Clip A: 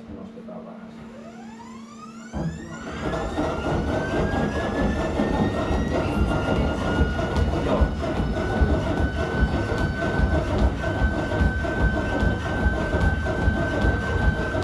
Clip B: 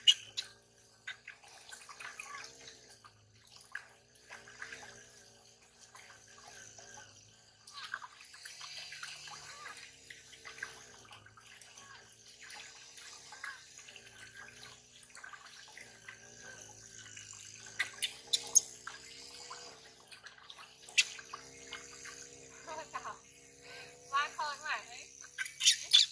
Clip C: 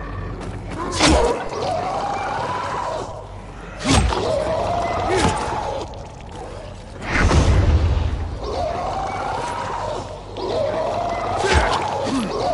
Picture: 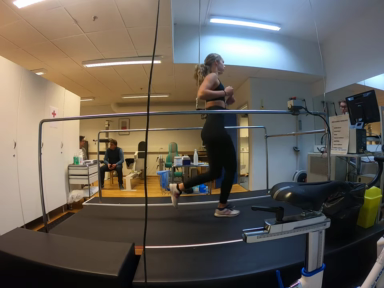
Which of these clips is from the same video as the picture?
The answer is A